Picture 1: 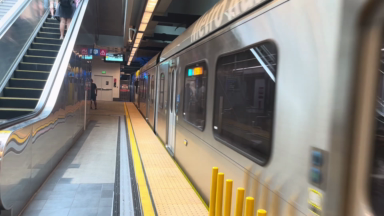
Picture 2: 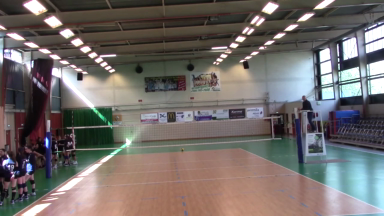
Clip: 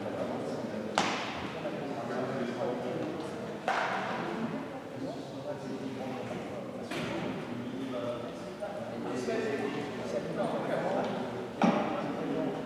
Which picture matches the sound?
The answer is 2